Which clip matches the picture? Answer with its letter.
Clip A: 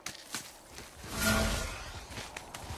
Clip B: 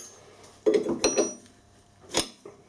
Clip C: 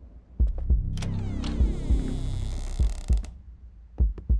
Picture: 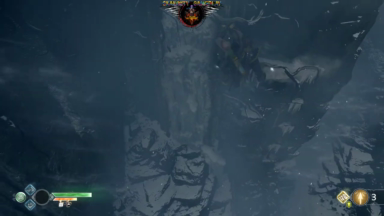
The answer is A